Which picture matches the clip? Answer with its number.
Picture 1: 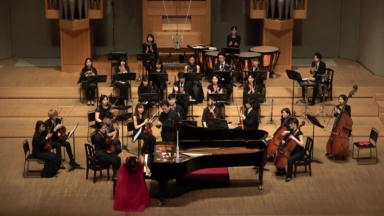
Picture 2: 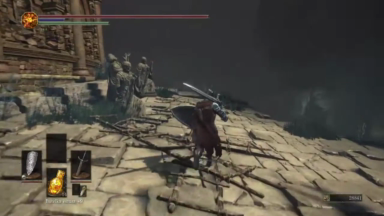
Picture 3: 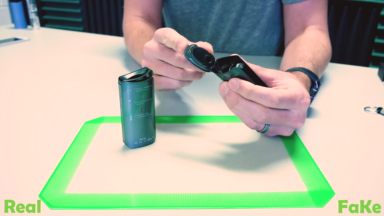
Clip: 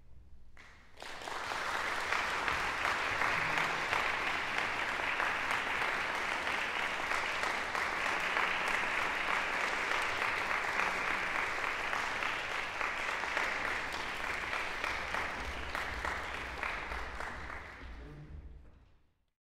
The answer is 1